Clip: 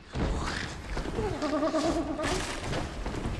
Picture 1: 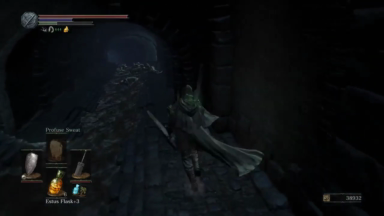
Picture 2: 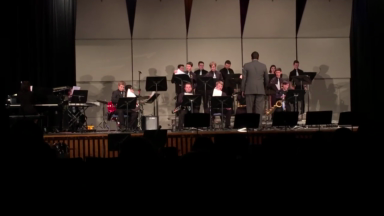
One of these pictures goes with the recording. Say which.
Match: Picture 1